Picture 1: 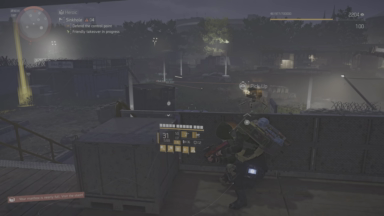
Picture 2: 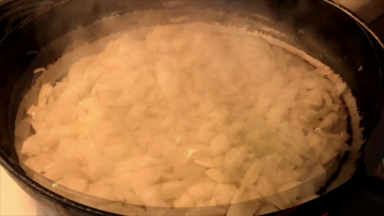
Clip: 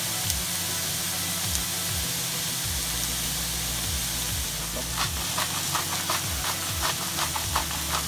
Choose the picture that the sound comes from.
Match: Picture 2